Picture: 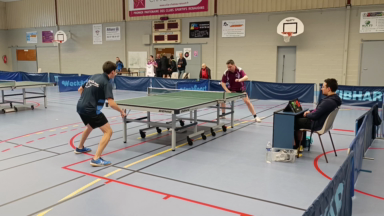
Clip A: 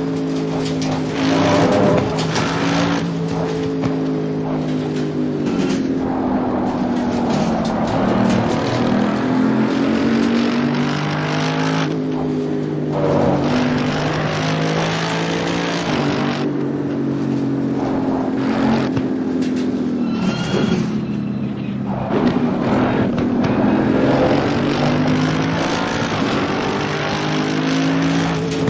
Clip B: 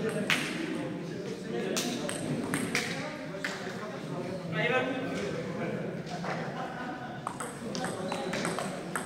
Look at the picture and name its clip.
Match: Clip B